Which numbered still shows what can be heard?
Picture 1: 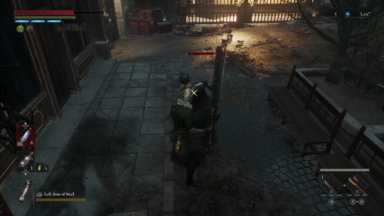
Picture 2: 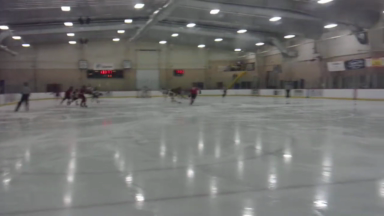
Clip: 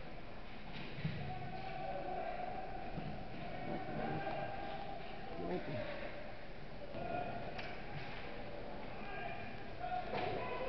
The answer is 2